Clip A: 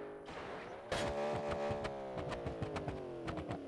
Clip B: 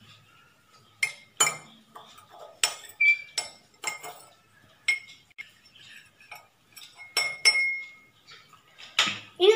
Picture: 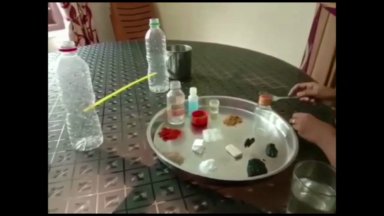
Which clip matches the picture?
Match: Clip B